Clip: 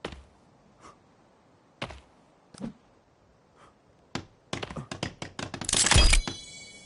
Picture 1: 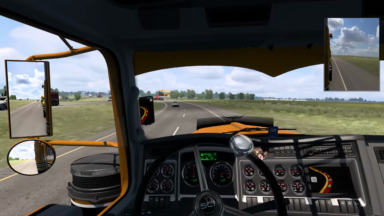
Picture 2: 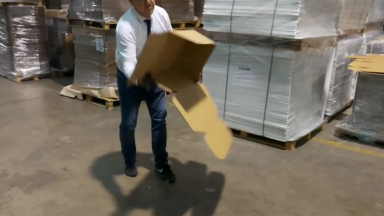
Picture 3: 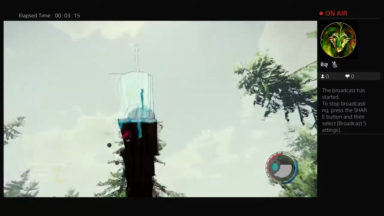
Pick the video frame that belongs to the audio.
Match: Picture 3